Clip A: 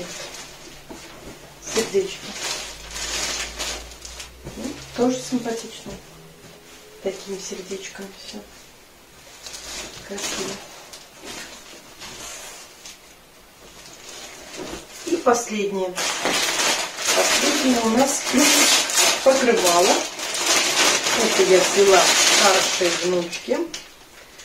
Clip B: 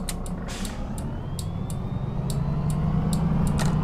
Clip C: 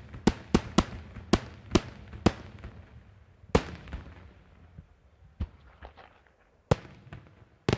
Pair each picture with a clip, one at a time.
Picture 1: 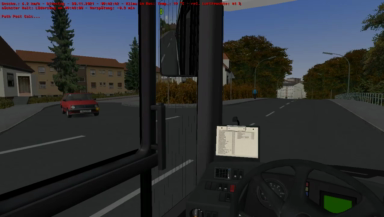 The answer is B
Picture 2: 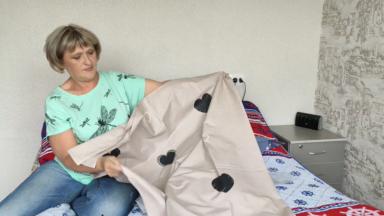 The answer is A